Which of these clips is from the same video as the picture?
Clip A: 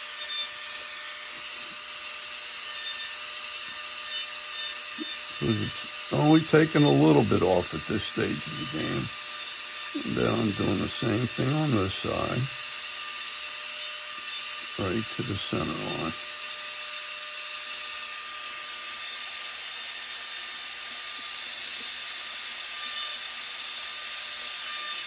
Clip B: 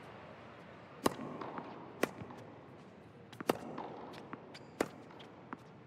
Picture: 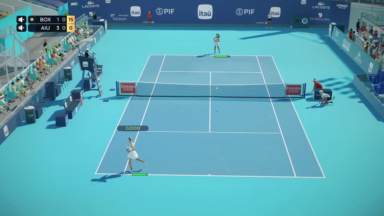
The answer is B